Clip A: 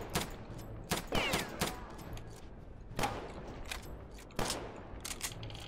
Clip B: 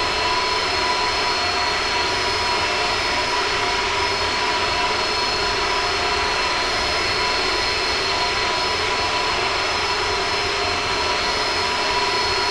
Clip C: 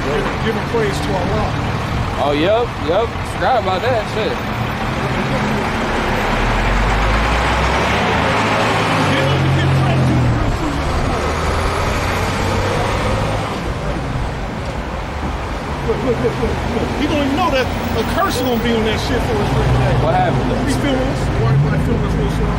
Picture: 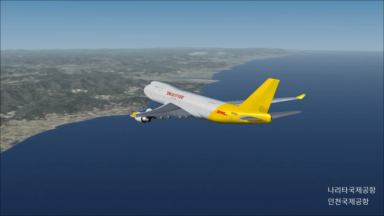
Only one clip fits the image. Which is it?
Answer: B